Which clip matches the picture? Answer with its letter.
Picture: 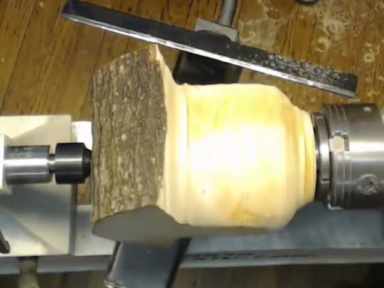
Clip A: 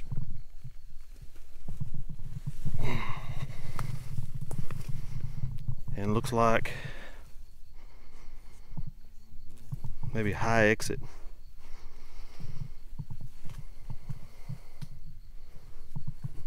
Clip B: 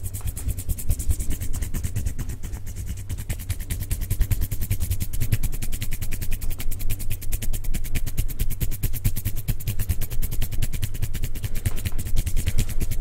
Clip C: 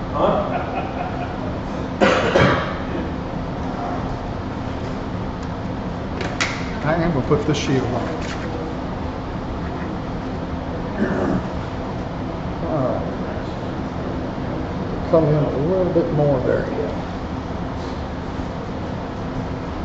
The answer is C